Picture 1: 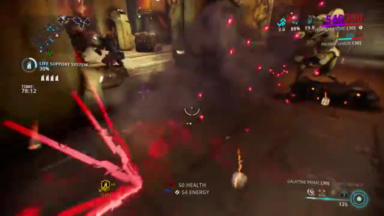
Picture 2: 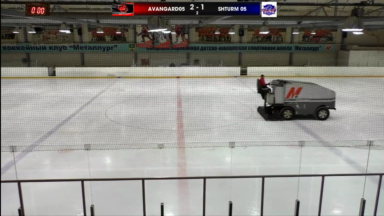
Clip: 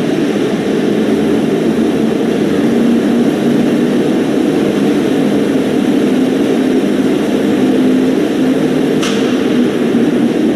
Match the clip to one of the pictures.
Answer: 2